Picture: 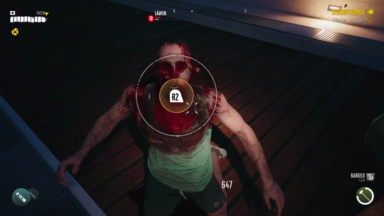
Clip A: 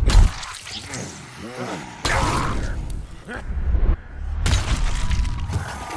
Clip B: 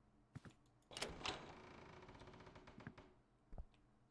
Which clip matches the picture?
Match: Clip A